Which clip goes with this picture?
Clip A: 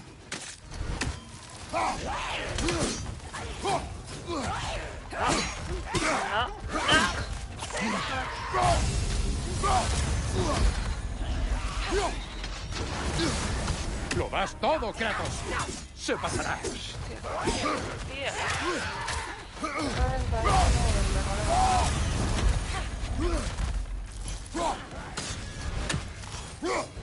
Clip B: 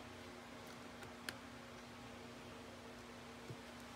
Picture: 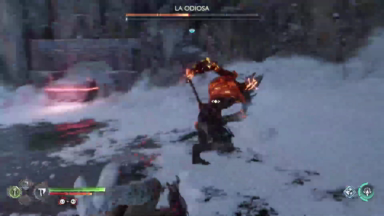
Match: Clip A